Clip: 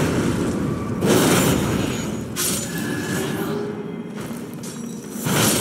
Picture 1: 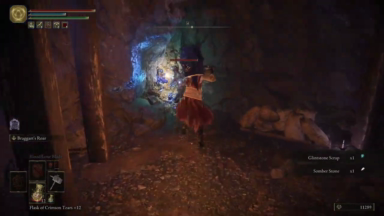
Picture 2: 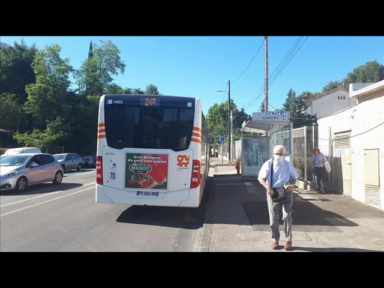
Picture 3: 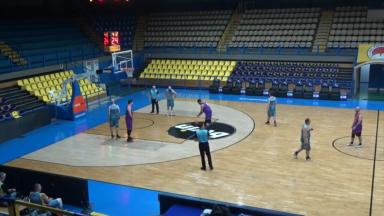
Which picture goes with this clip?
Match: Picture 1